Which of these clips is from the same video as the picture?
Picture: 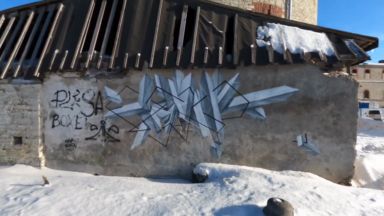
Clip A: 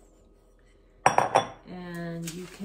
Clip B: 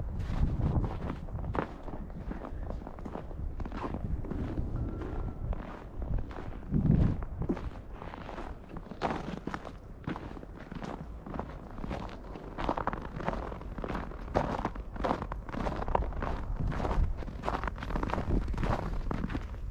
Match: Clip B